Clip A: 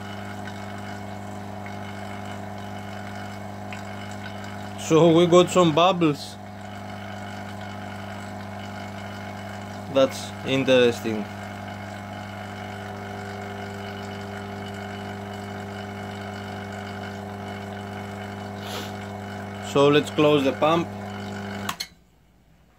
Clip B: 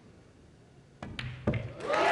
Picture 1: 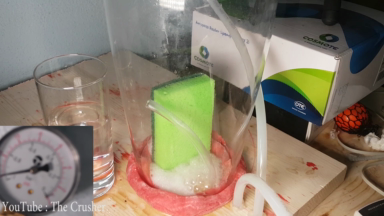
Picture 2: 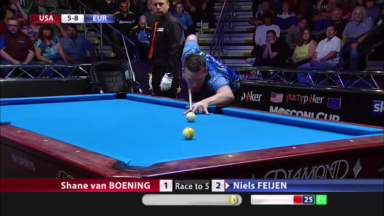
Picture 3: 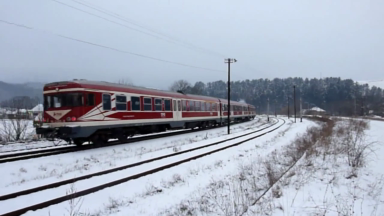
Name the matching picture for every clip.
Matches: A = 1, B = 2